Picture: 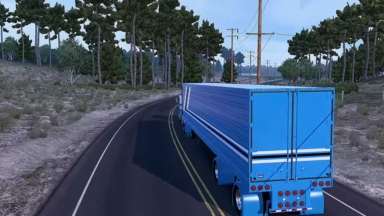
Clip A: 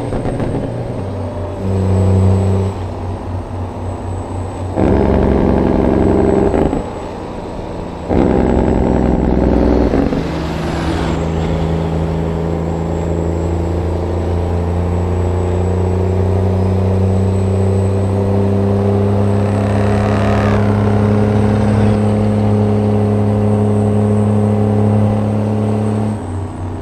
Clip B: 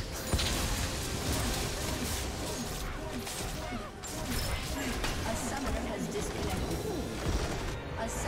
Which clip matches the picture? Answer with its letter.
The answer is A